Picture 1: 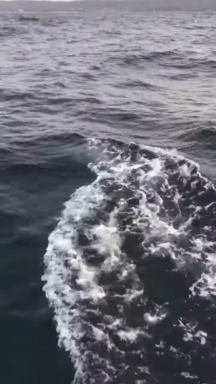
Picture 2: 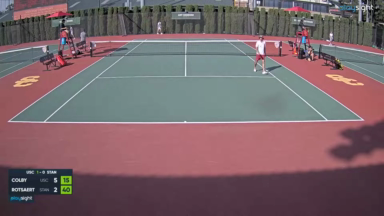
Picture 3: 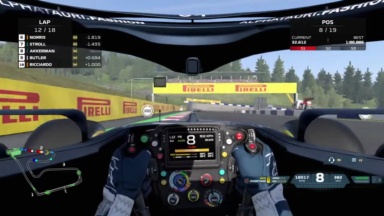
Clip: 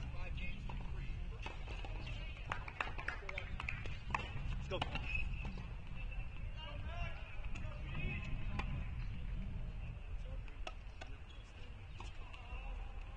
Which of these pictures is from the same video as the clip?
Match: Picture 2